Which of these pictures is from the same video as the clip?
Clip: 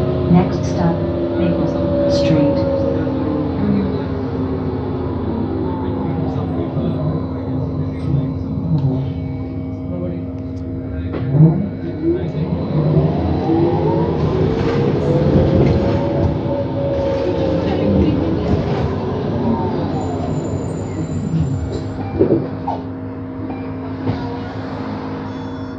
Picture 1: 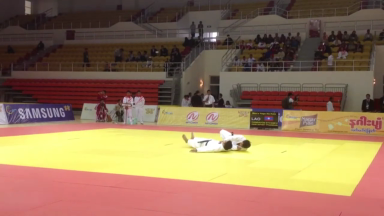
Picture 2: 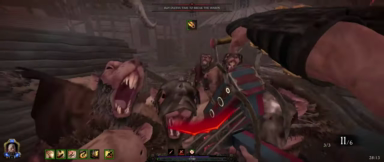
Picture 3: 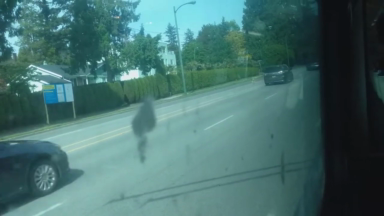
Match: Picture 3